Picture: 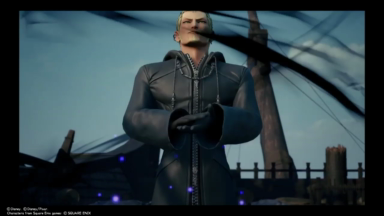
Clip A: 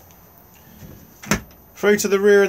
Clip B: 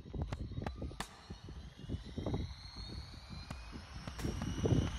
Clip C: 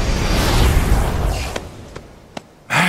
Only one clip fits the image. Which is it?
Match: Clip C